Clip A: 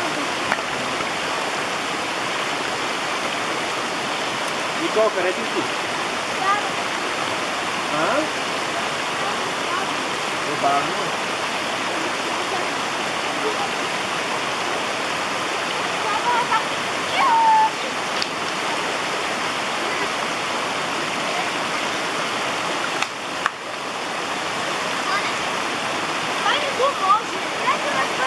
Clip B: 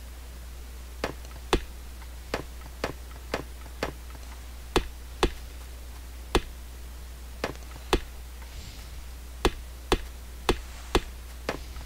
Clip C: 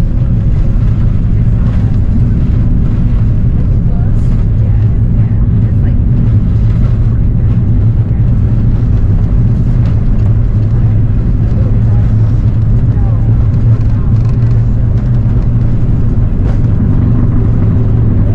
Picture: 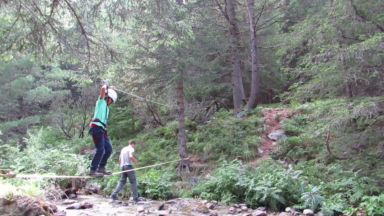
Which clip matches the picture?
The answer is A